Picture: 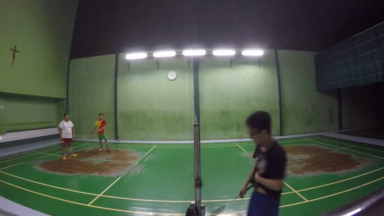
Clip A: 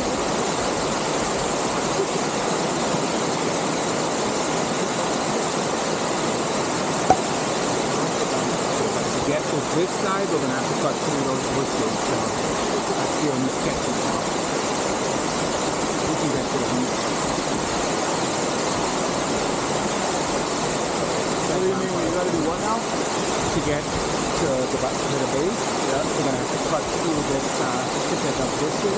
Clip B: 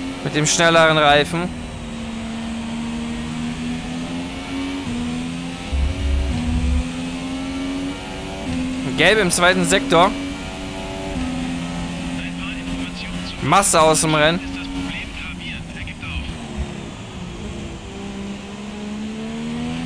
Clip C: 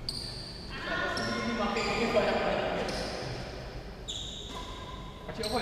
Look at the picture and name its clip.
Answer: C